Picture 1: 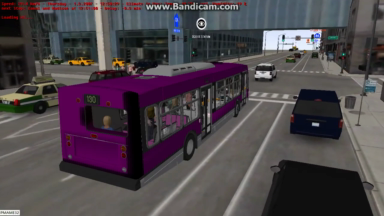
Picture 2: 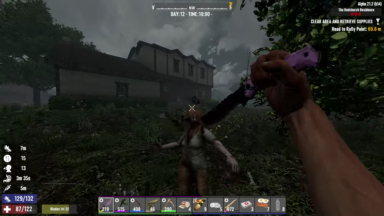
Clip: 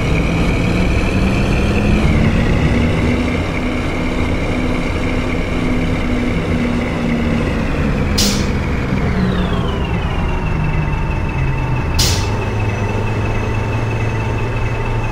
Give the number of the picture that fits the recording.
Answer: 1